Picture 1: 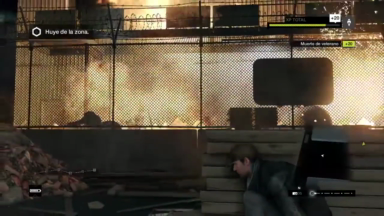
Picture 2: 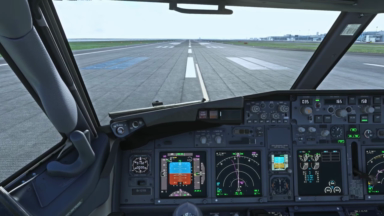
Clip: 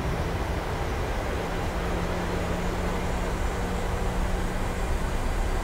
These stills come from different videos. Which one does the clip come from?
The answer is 2